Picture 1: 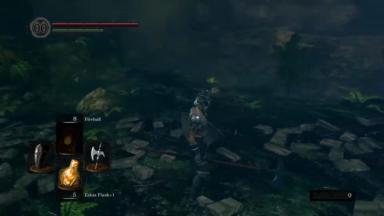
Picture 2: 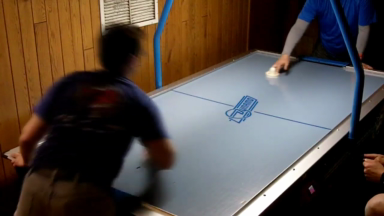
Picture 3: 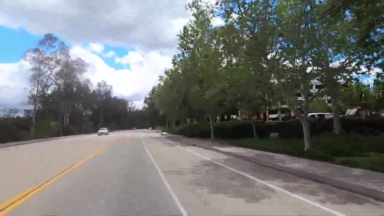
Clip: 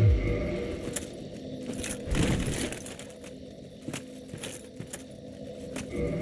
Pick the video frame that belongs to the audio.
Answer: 1